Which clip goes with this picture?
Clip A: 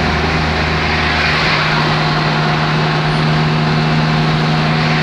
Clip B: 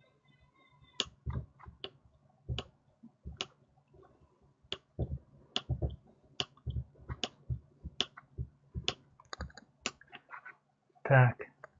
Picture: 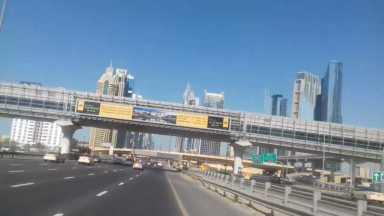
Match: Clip A